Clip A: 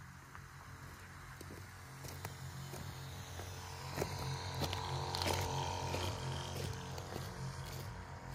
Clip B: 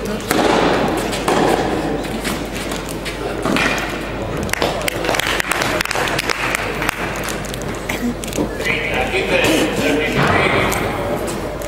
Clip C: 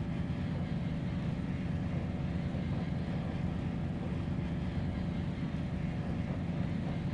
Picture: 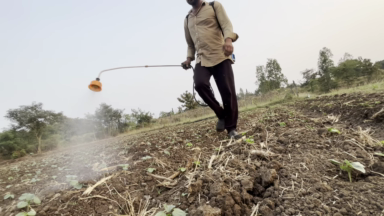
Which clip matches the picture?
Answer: A